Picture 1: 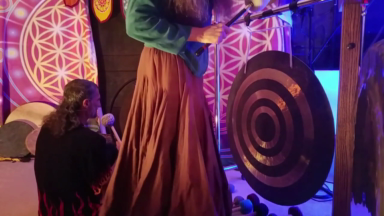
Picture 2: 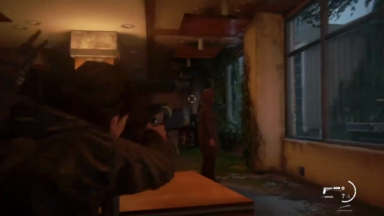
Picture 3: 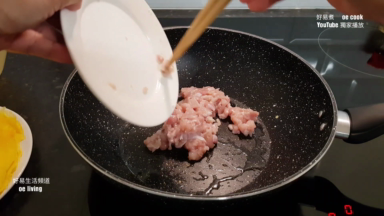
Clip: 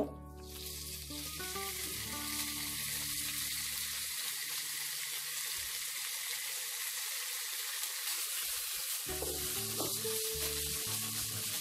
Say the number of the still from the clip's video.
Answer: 3